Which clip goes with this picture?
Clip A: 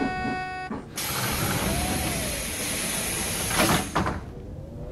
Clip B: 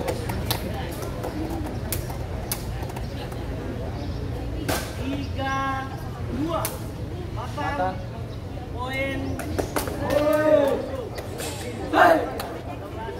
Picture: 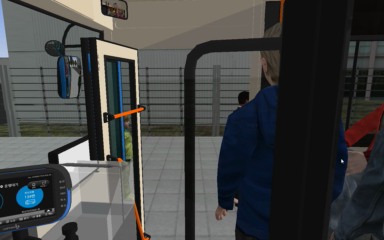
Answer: A